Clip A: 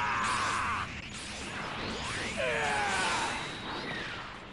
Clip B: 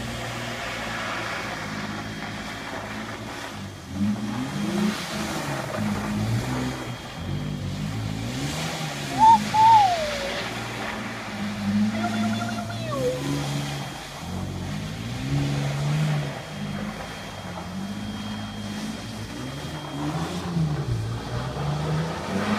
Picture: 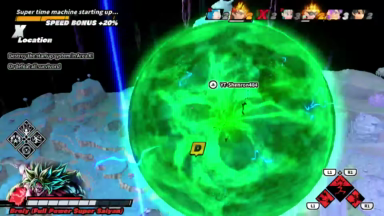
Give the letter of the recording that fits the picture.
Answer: A